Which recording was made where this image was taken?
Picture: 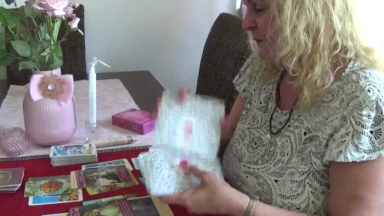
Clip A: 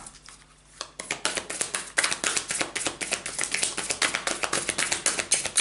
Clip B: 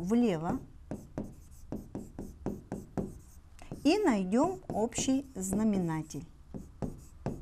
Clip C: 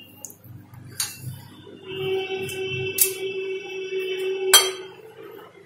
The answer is A